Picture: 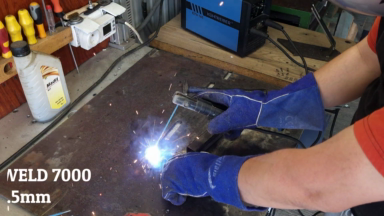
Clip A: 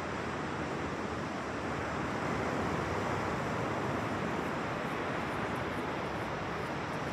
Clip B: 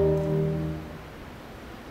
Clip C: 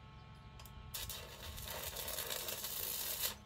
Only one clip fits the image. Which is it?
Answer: C